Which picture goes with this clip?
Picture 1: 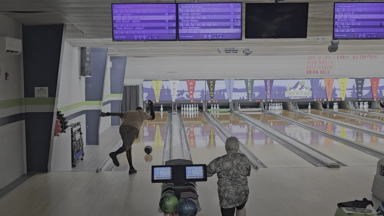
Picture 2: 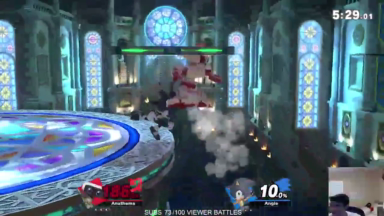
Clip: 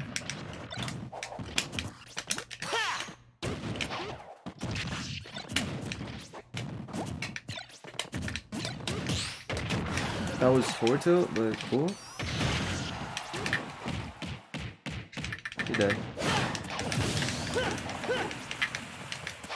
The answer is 2